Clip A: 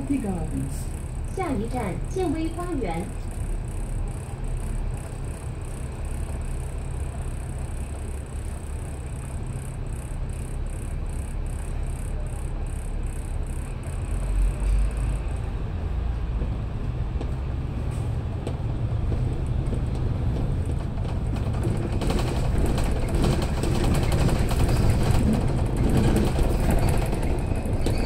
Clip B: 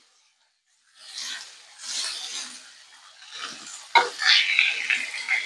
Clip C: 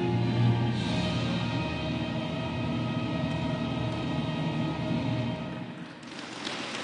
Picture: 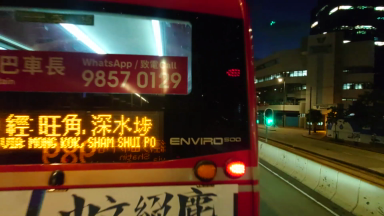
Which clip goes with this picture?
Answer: A